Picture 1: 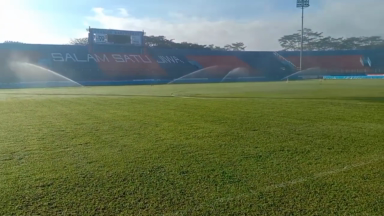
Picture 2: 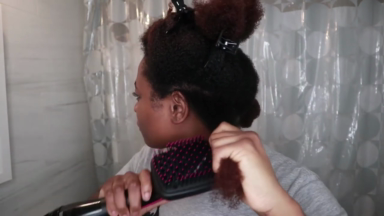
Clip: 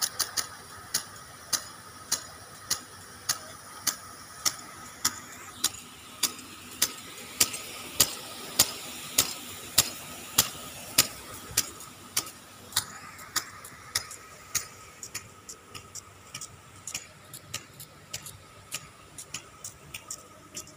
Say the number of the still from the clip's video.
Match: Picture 1